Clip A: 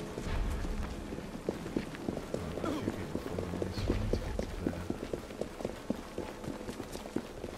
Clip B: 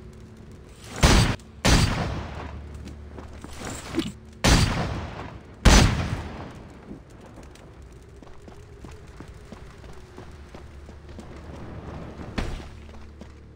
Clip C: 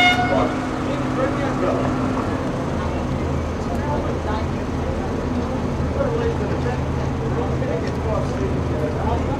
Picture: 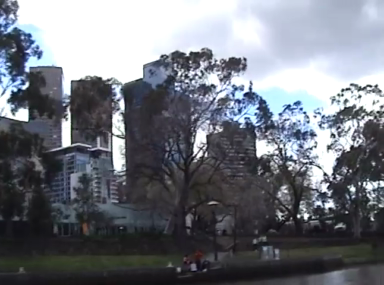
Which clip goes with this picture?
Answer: C